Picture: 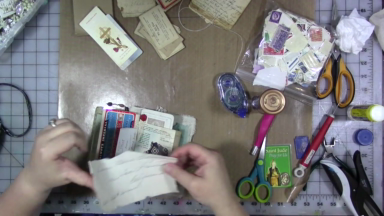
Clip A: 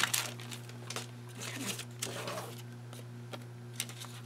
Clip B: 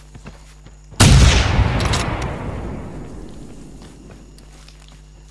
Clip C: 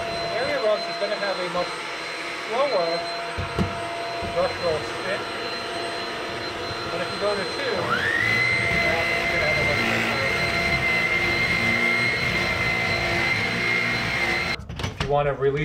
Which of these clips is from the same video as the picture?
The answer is A